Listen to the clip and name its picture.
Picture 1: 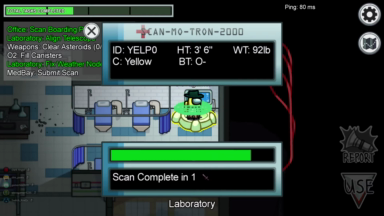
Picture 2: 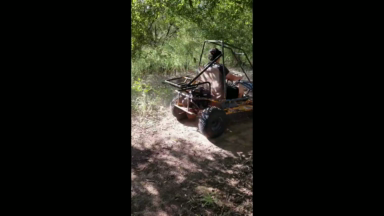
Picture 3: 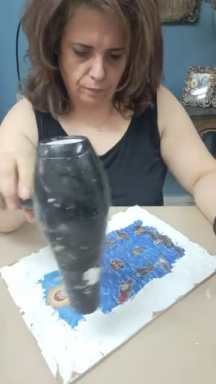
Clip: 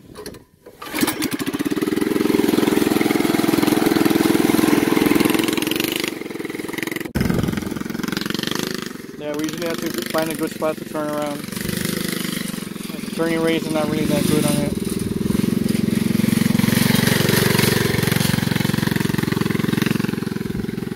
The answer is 2